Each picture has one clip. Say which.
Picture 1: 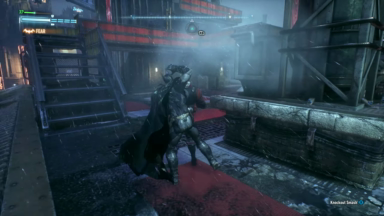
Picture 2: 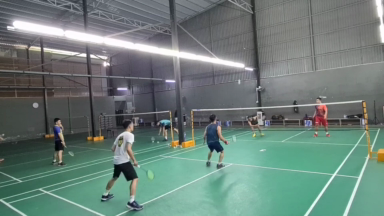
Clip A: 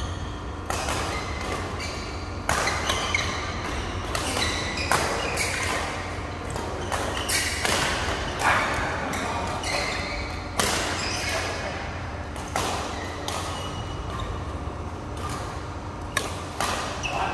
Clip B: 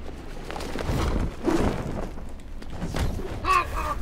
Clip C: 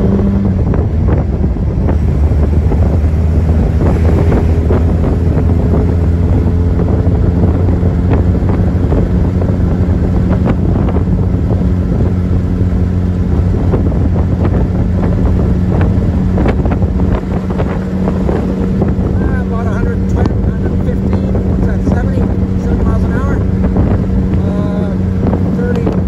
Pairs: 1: B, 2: A